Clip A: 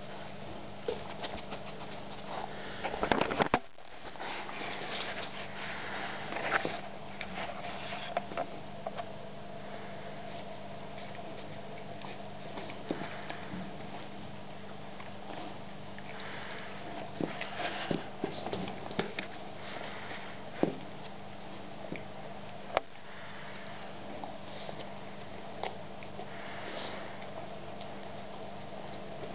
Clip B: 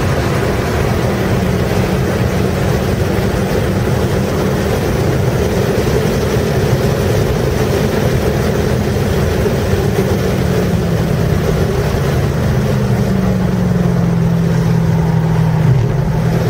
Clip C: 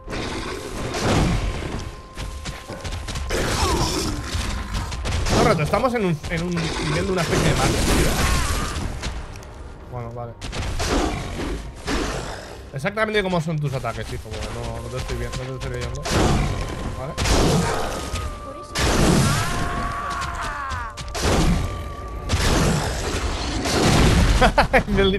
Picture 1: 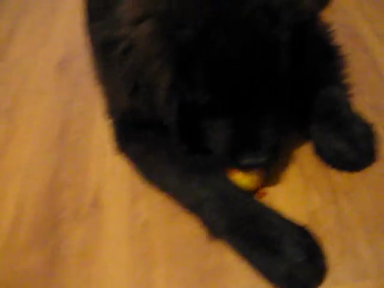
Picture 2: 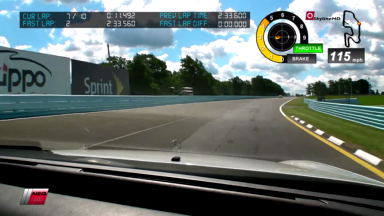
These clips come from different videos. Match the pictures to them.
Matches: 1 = A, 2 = B